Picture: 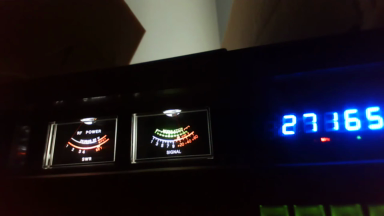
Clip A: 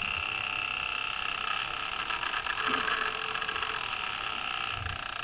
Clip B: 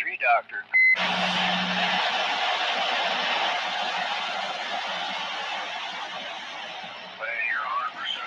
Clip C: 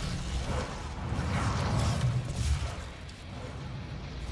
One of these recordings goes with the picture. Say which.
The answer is B